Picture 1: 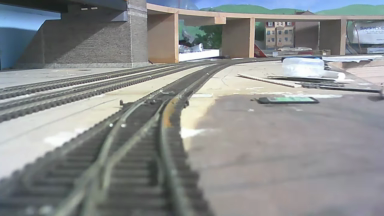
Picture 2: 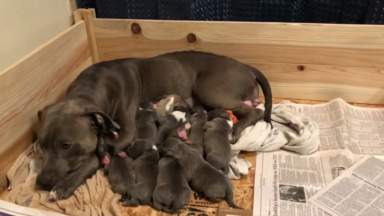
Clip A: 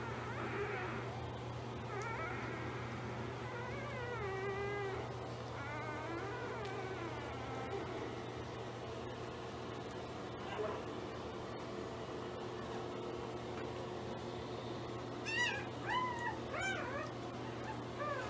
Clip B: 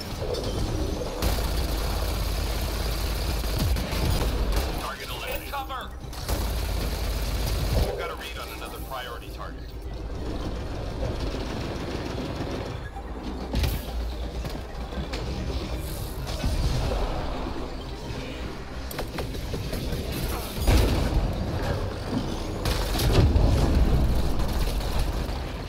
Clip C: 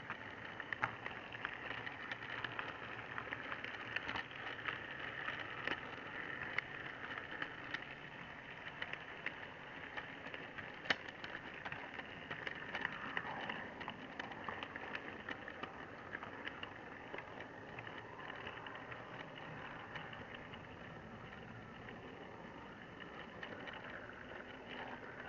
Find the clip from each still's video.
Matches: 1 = C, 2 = A